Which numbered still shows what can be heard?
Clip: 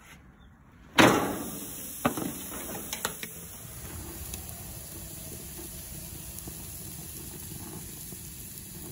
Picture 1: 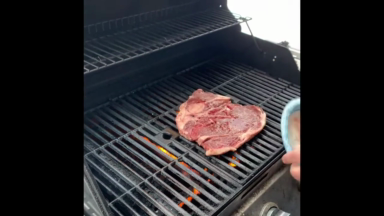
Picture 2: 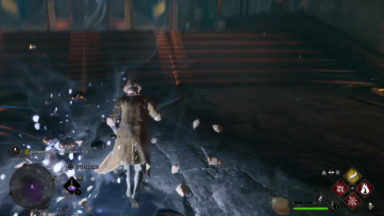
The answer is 1